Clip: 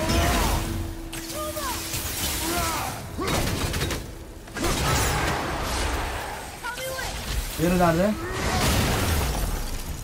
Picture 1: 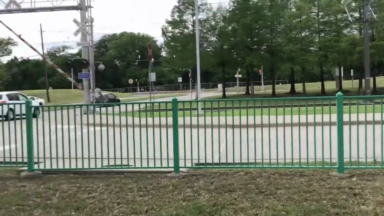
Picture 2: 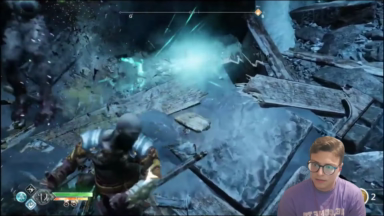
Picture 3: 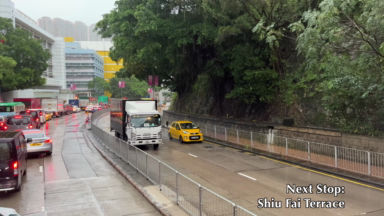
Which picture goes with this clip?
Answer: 2